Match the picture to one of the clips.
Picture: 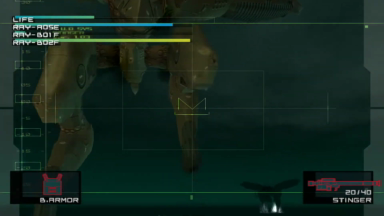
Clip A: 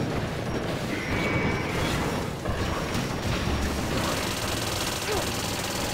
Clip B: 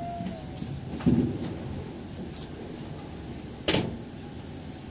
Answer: A